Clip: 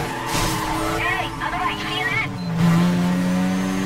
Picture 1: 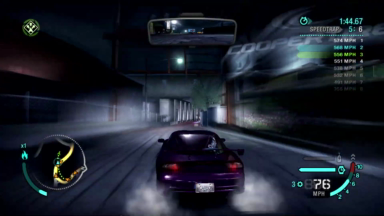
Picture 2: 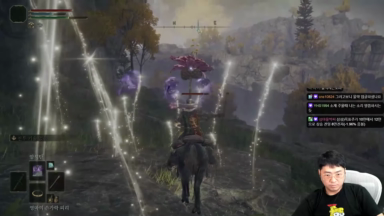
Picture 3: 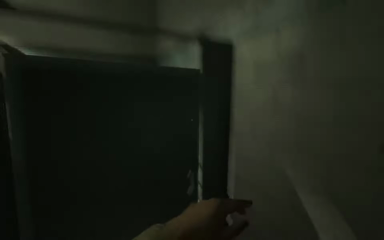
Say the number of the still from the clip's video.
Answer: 1